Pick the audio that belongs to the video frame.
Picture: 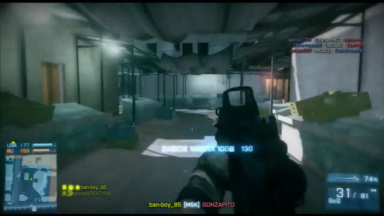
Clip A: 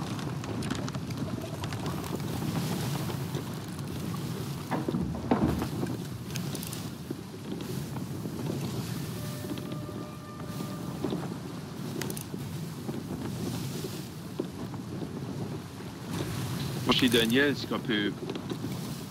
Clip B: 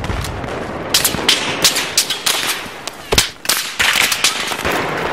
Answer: B